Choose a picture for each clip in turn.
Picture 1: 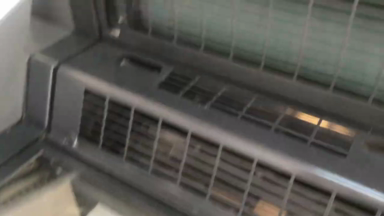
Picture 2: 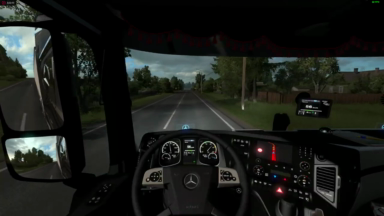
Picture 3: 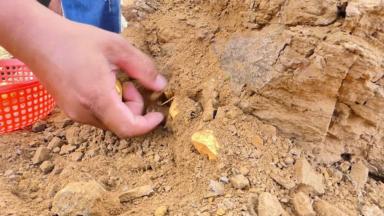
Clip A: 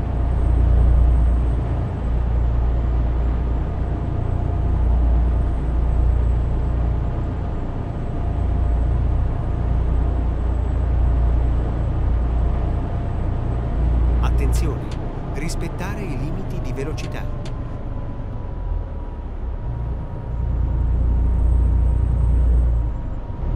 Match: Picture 2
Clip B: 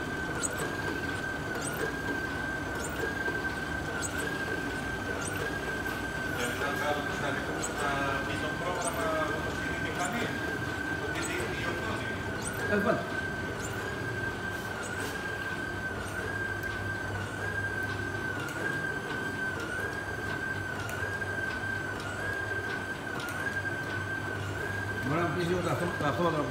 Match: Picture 1